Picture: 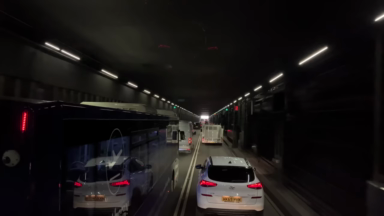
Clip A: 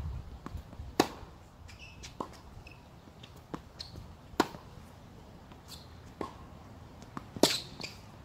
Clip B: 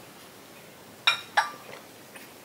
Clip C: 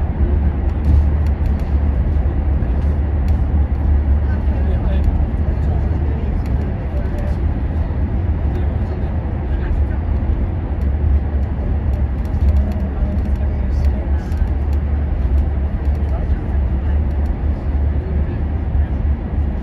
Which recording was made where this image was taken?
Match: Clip C